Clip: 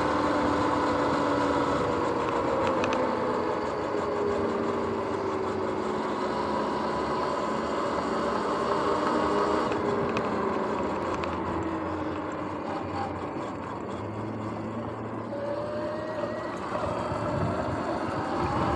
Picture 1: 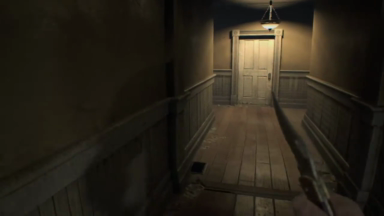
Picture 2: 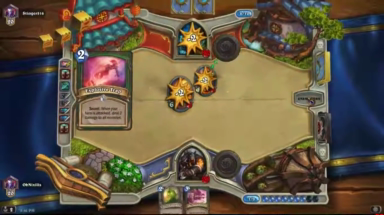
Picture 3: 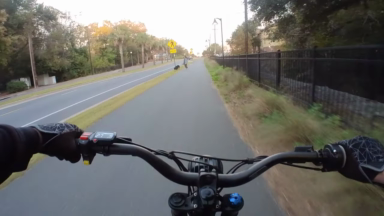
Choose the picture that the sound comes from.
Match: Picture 3